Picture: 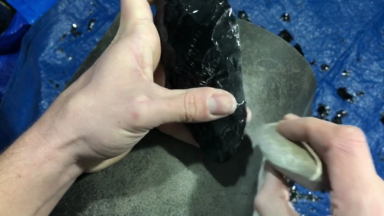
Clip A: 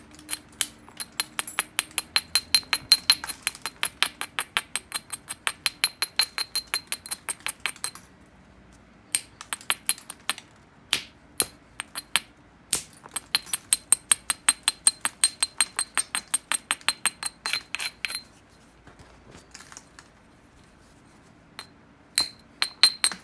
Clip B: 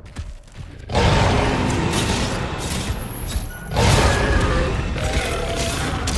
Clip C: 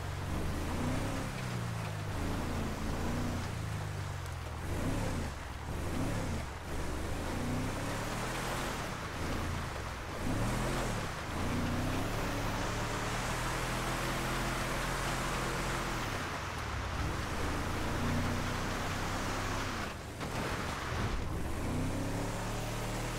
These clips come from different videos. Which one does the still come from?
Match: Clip A